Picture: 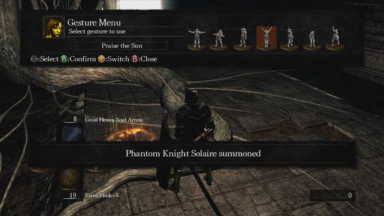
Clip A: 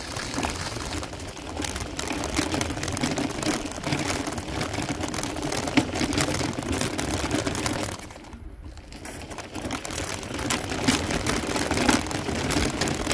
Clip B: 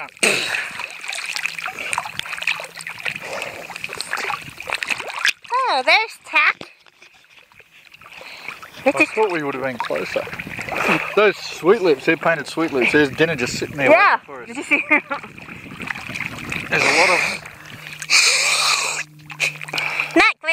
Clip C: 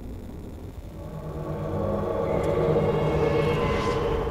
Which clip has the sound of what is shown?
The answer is C